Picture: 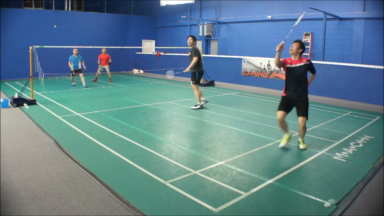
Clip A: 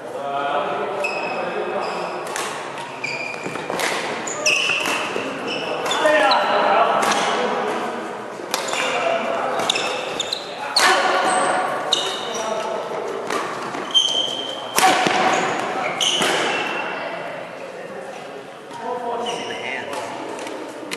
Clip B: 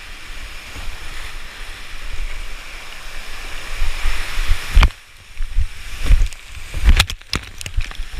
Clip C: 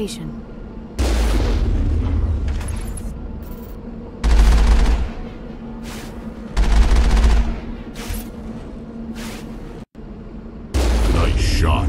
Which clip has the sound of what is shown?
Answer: A